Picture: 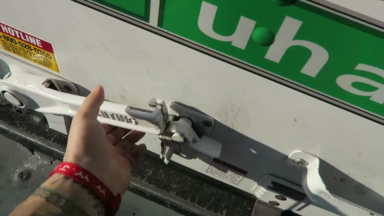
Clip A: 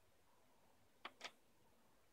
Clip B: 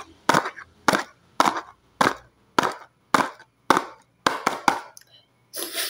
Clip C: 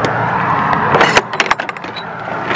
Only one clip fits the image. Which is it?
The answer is C